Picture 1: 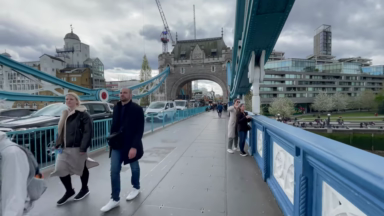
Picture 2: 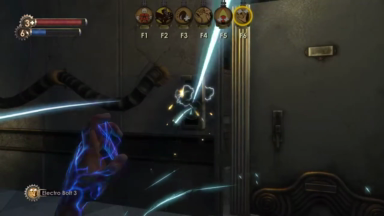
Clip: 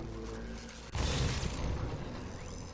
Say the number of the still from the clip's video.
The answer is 2